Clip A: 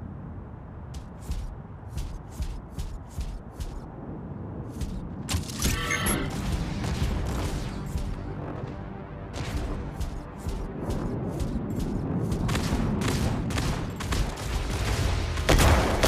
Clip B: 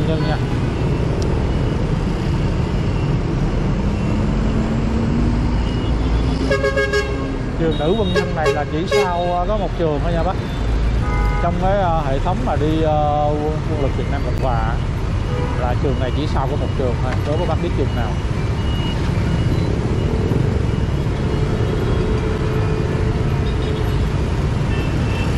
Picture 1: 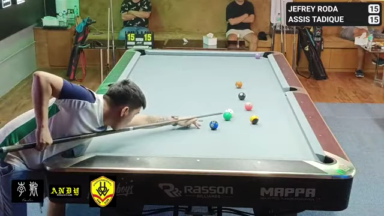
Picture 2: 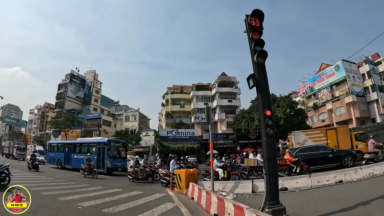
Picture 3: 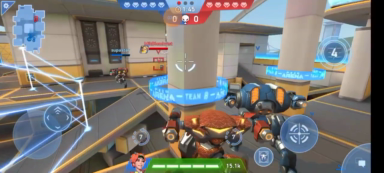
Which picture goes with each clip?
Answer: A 3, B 2